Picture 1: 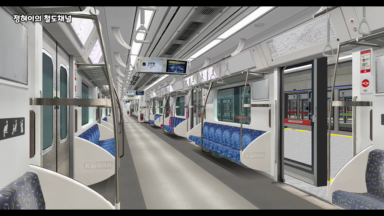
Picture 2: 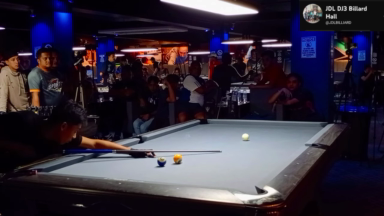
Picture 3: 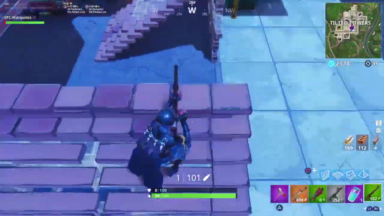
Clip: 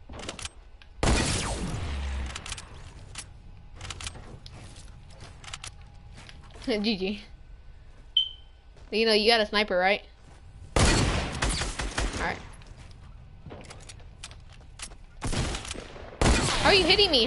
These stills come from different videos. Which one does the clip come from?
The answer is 3